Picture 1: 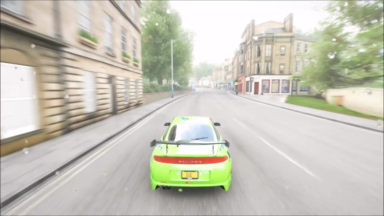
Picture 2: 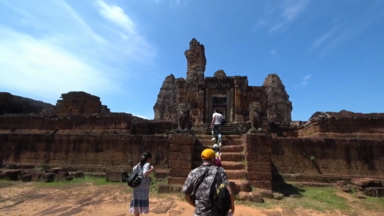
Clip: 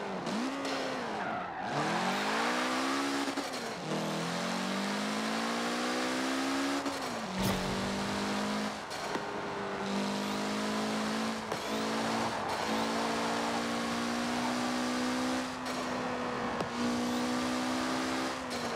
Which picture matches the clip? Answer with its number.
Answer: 1